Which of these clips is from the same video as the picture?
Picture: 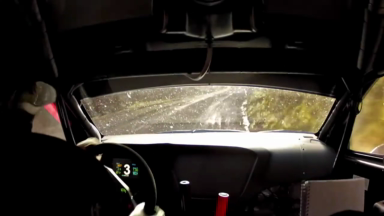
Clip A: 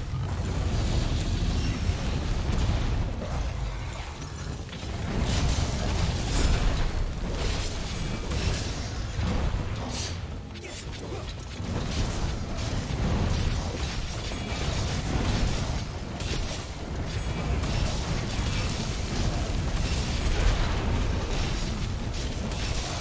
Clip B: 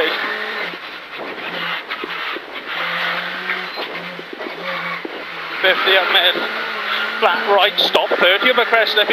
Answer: B